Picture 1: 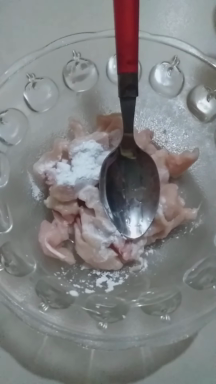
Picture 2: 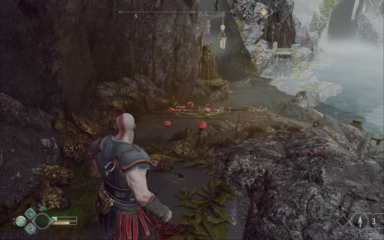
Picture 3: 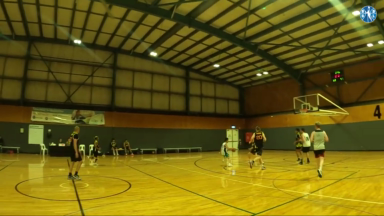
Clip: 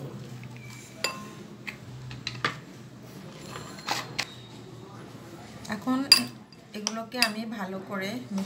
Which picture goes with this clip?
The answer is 1